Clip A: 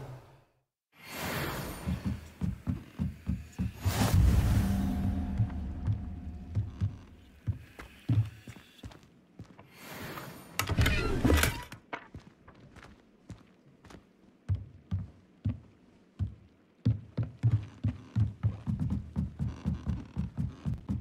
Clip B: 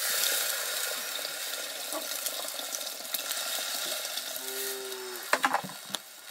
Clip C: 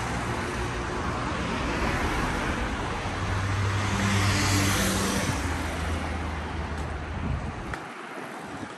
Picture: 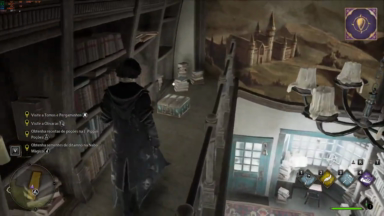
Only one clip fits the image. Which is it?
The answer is A